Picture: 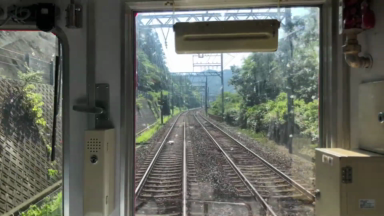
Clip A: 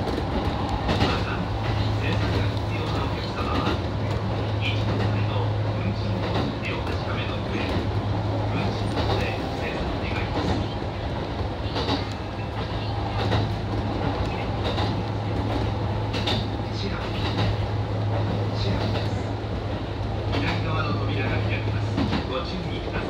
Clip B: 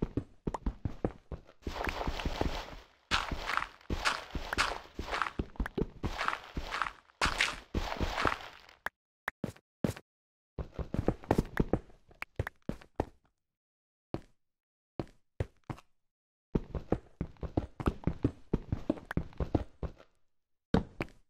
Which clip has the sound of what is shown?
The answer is A